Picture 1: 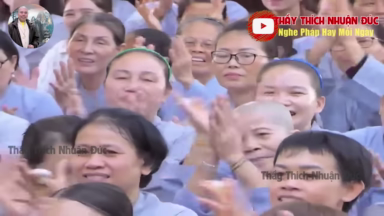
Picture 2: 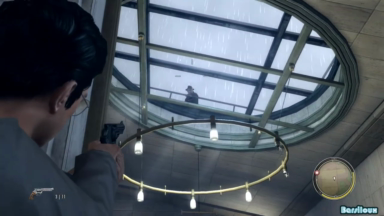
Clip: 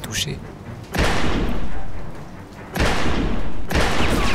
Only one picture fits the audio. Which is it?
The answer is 2